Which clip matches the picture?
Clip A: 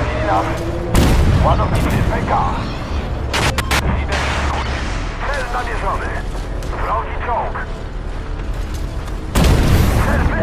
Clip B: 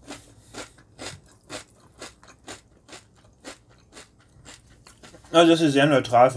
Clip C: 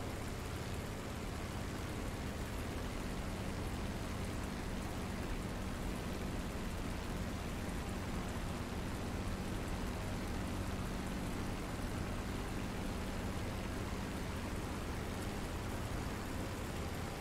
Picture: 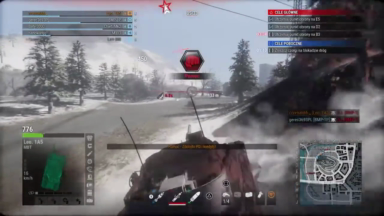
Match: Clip A